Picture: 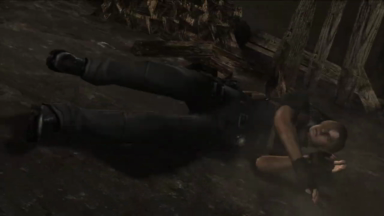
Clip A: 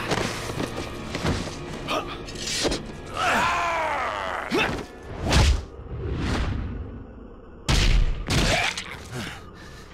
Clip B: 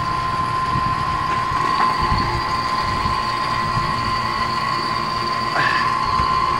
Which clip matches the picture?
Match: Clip A